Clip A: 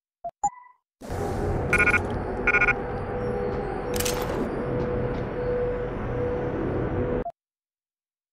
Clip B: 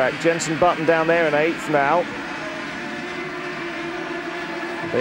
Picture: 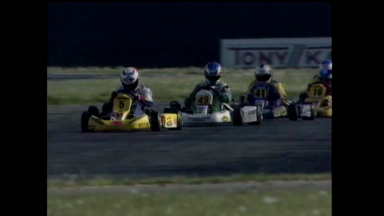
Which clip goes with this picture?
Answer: B